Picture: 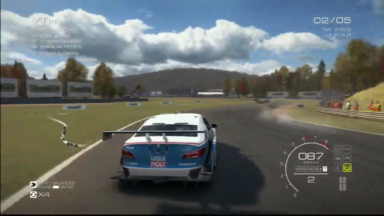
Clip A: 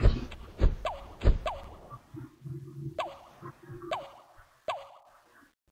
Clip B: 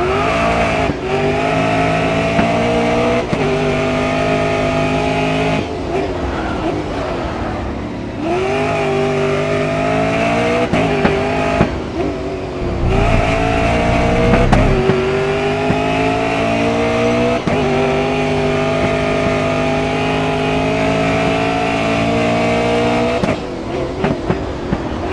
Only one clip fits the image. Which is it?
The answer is B